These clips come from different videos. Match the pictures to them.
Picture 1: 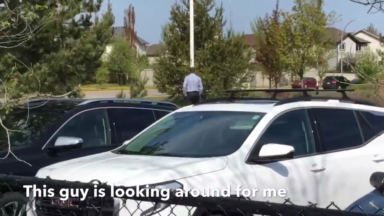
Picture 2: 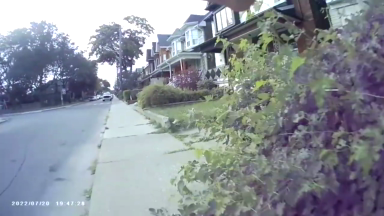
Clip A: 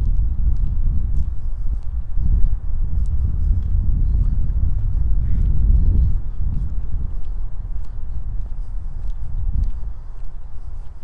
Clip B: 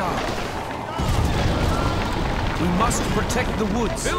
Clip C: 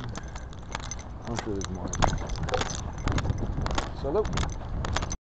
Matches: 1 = A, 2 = C